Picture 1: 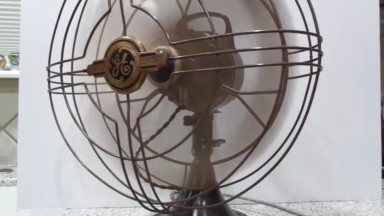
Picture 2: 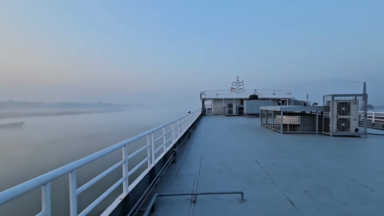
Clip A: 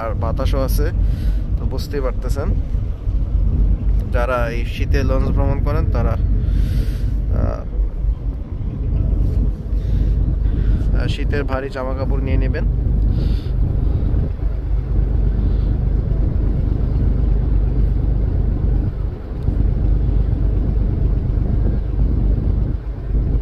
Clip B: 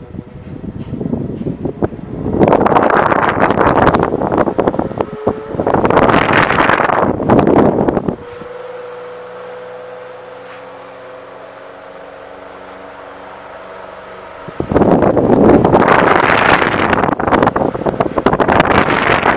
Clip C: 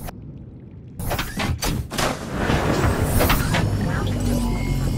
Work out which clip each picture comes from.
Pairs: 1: B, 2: A